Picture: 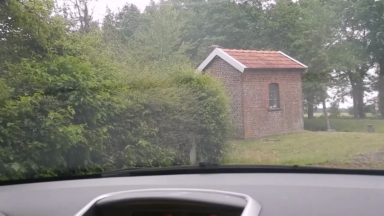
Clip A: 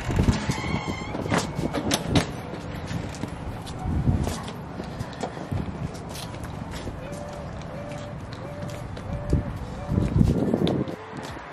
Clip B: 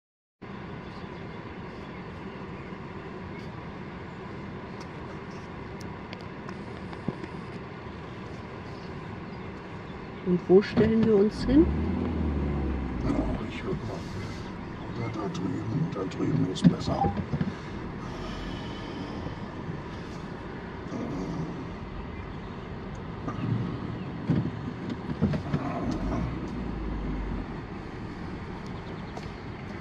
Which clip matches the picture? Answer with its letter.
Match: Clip B